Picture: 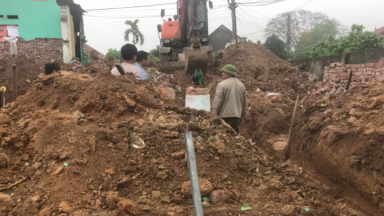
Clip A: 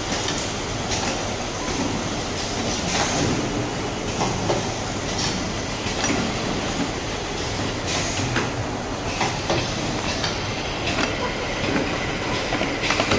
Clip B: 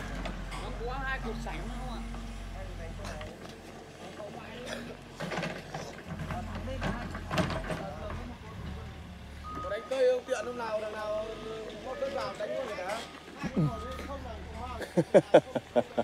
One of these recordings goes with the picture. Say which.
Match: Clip B